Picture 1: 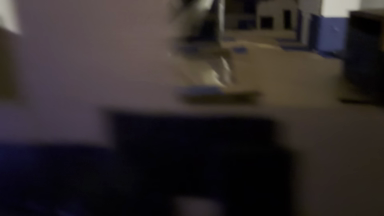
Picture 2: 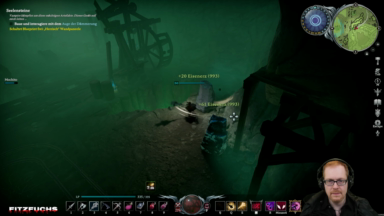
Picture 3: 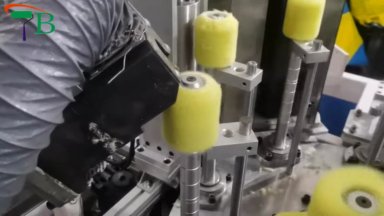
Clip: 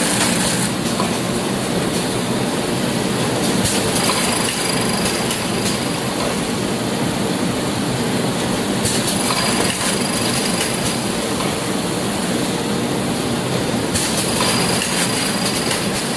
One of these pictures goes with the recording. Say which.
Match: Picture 3